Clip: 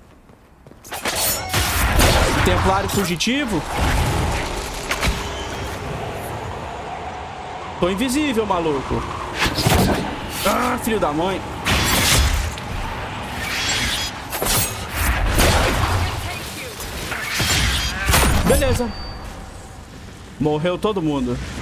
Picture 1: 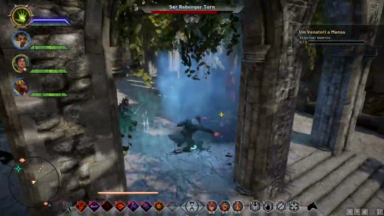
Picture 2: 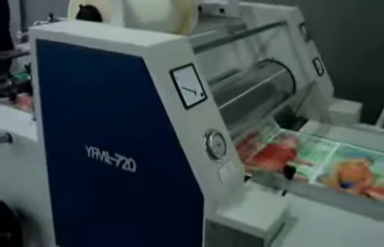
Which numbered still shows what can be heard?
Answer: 1